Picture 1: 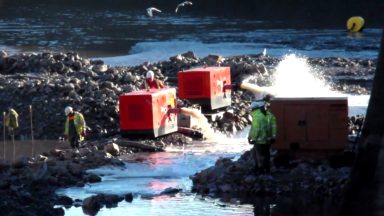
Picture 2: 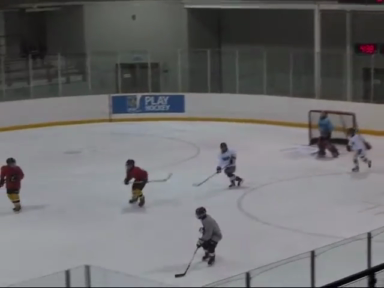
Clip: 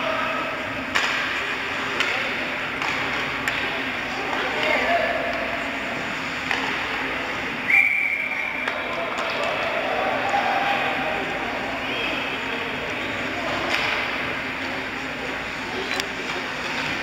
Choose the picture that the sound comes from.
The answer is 2